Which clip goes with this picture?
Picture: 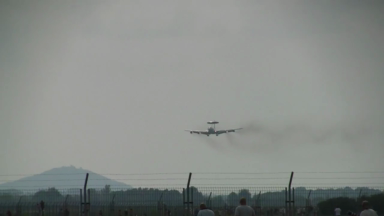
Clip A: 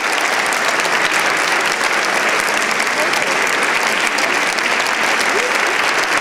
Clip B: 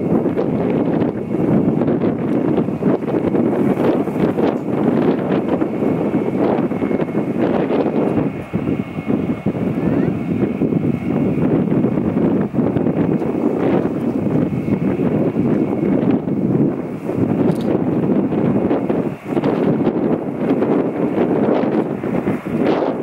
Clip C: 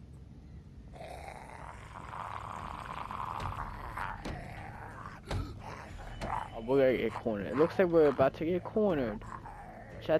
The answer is B